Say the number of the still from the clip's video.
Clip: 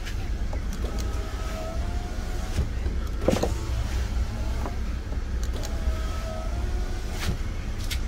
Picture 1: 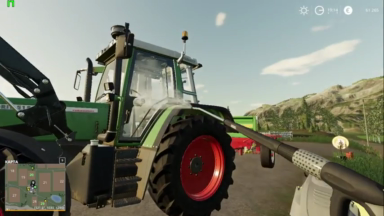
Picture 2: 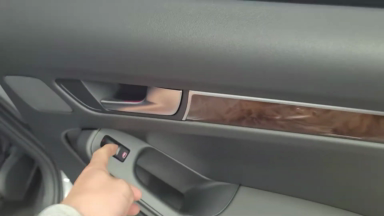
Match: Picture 2